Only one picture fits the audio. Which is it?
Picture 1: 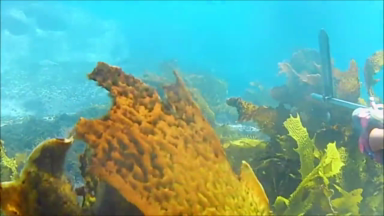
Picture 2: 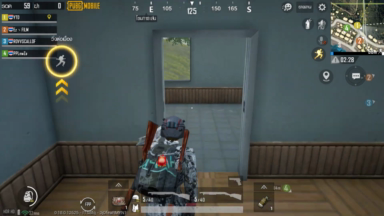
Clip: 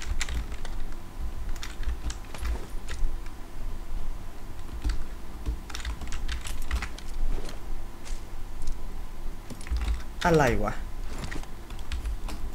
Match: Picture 2